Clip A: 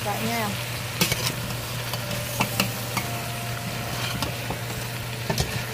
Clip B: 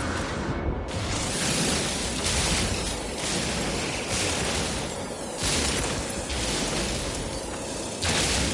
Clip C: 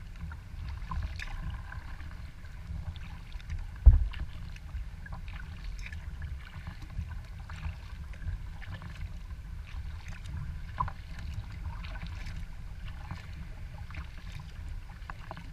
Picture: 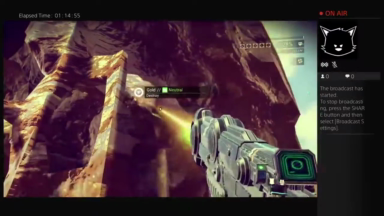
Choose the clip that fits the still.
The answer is B